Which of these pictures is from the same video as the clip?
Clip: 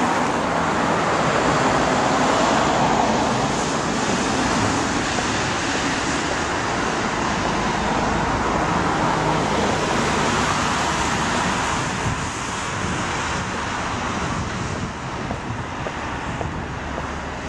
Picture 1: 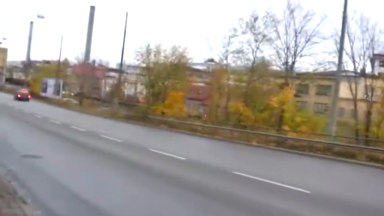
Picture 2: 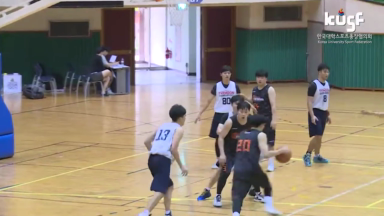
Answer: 1